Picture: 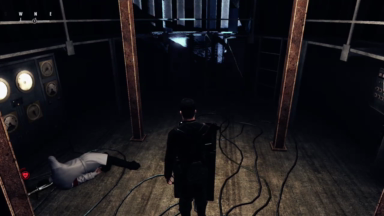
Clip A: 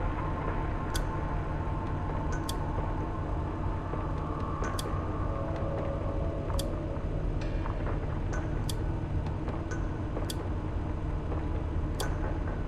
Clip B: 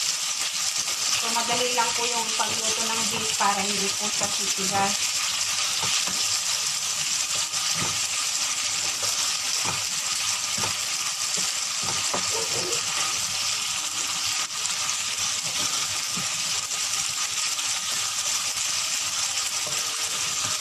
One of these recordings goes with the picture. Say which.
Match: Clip A